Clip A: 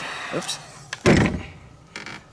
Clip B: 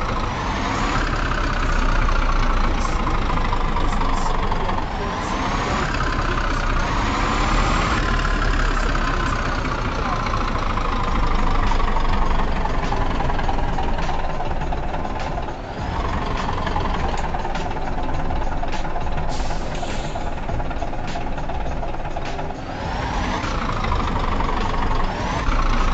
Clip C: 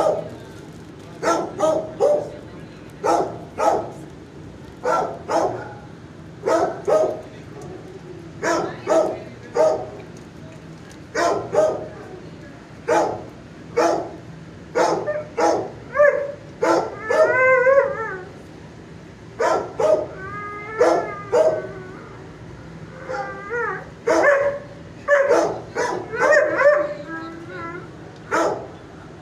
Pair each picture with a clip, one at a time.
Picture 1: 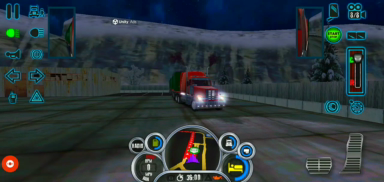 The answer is B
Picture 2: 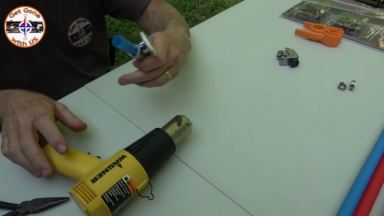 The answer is A